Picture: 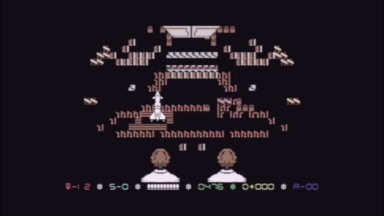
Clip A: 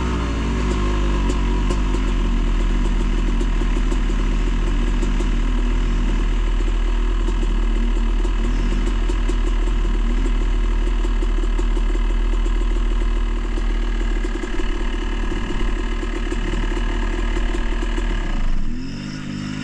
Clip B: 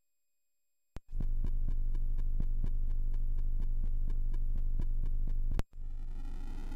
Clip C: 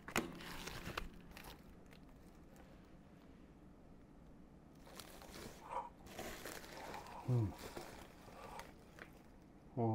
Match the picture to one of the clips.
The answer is B